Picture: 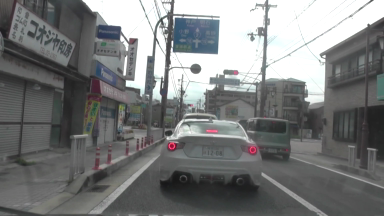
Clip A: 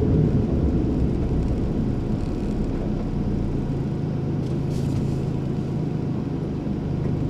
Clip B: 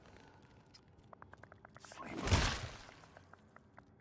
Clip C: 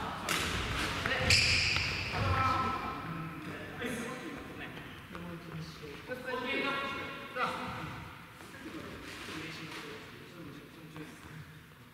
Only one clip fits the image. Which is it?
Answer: A